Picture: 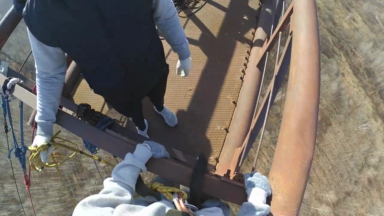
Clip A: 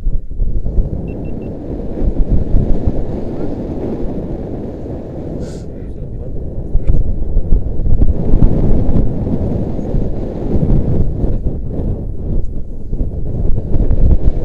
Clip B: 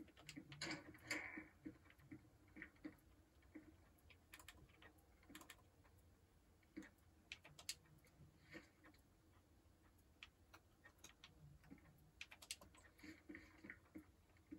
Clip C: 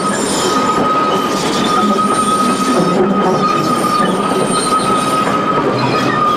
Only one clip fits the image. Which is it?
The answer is A